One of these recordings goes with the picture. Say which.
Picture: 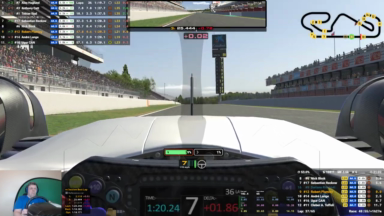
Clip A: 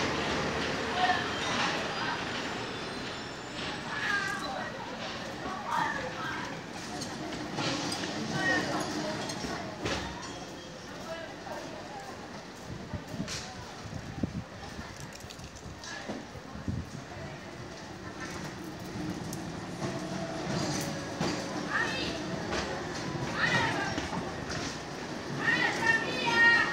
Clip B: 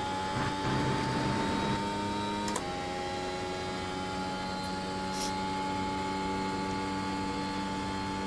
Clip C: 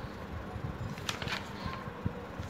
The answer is B